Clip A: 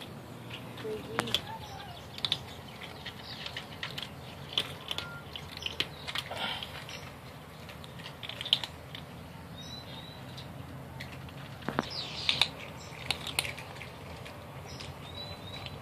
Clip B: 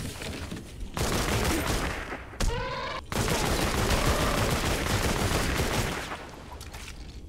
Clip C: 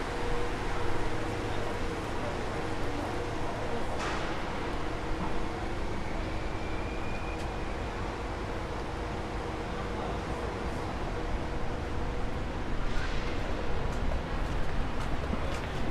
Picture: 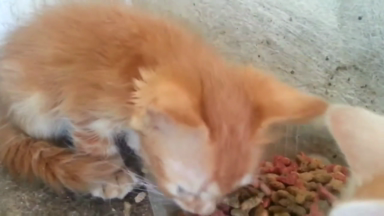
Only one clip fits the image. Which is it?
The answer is A